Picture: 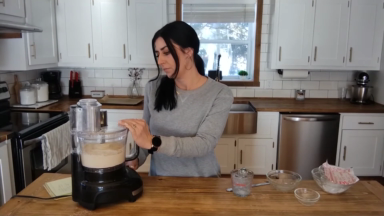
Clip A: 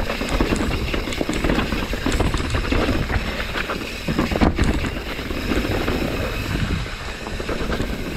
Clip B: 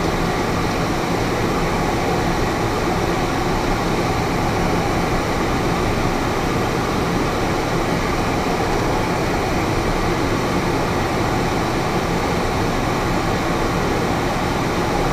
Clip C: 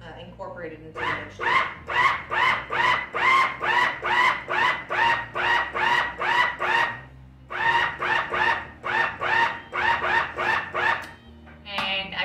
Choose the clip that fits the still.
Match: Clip C